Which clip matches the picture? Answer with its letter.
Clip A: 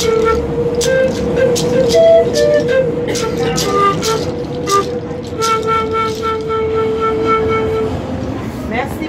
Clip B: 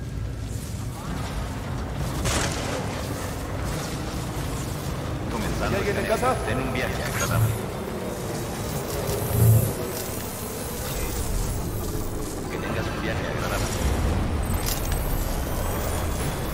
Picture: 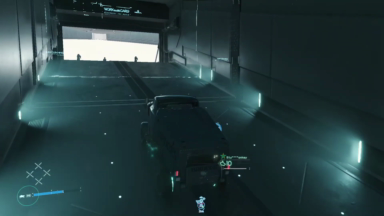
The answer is B